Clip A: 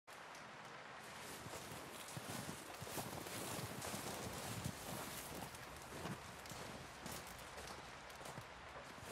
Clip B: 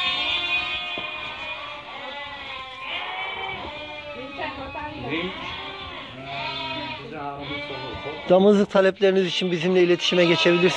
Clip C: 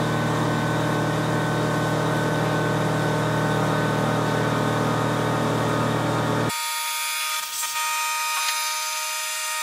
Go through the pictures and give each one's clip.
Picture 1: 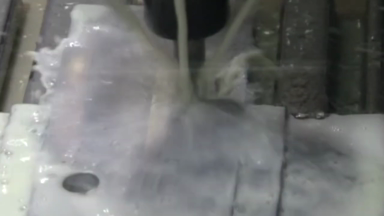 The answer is C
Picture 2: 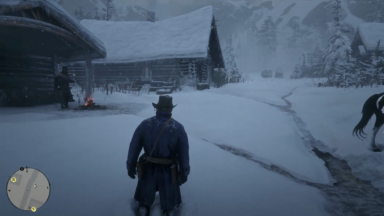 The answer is A